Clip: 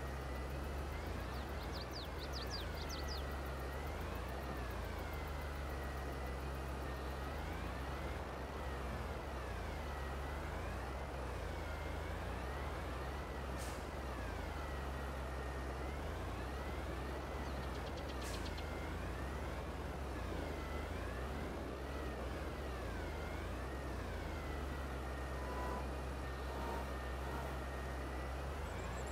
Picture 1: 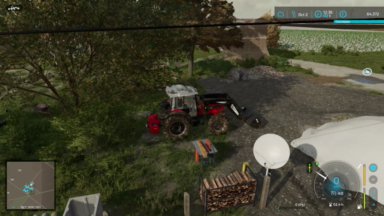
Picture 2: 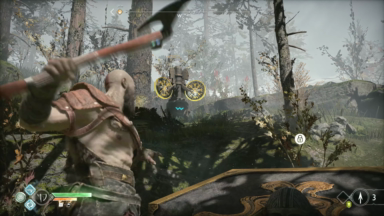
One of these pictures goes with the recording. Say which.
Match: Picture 1